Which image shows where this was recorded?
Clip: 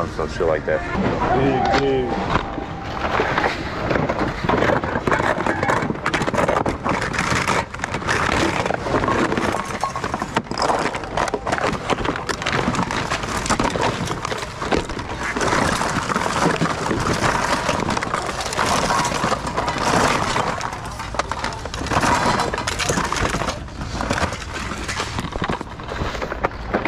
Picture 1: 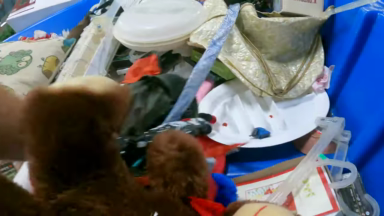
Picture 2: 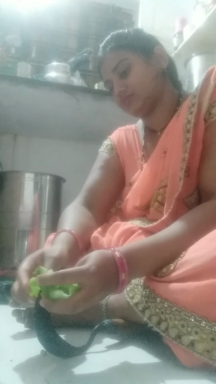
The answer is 1